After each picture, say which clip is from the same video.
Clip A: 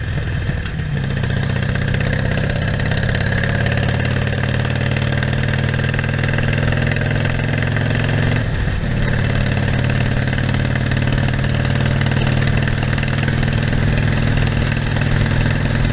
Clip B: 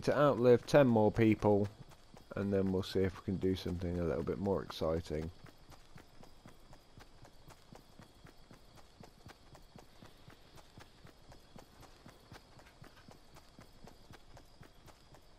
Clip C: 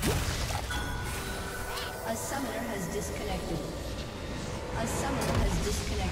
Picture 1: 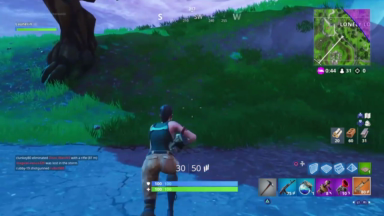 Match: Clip B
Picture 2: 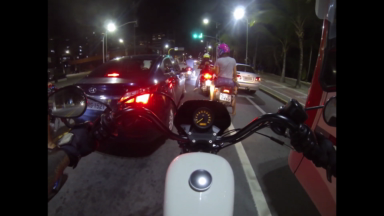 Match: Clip A